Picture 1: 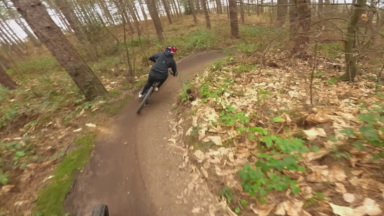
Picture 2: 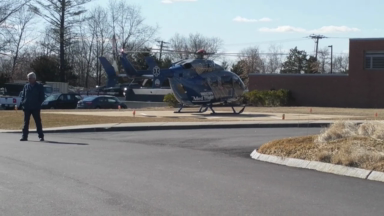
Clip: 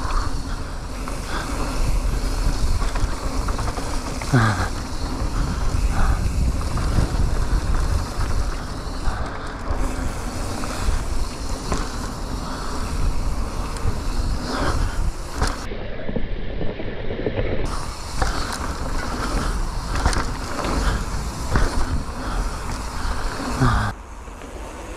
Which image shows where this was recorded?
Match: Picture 1